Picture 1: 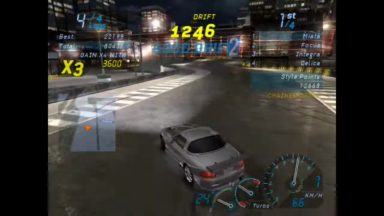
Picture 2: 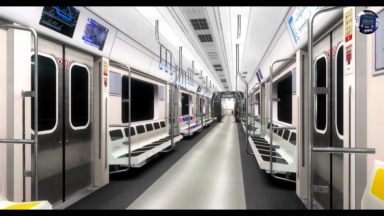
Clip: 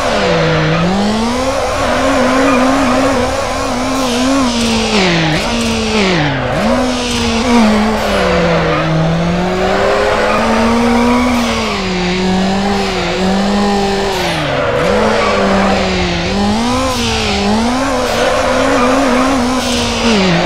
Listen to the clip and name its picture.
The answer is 1